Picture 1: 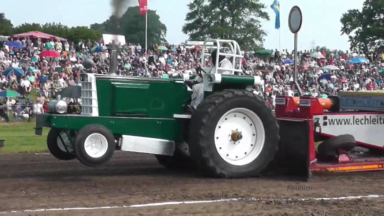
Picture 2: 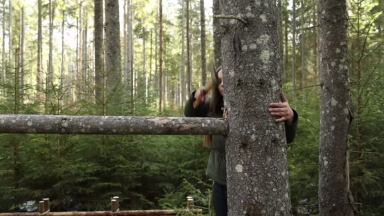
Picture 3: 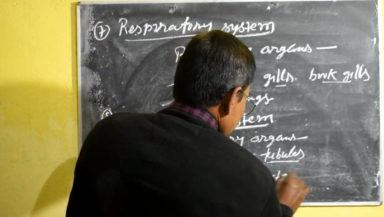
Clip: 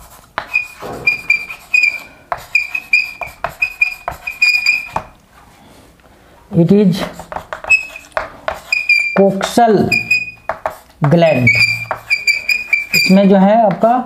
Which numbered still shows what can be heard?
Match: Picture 3